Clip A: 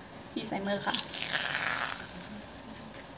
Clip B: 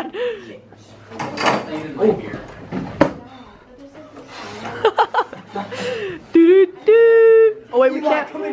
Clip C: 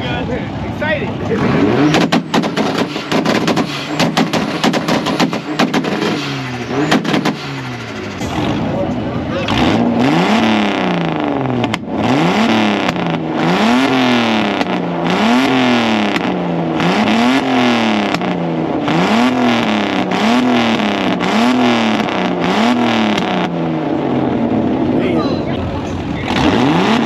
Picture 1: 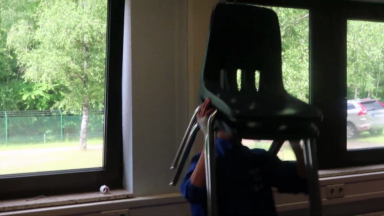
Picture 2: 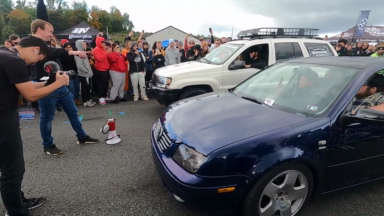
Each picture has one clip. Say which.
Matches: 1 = B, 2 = C